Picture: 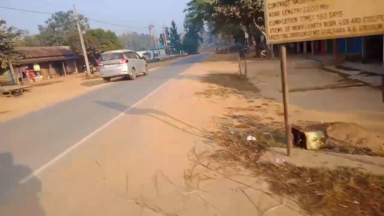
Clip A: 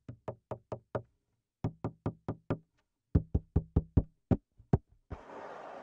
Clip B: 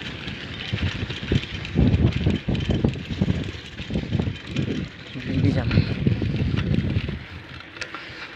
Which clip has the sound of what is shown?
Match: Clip B